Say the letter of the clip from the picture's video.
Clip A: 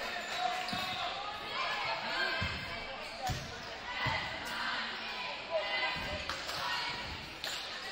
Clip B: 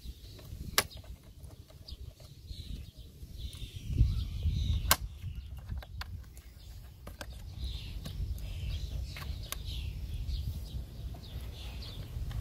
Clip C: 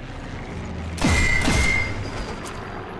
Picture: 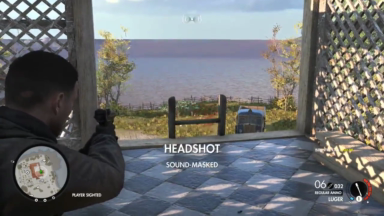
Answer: C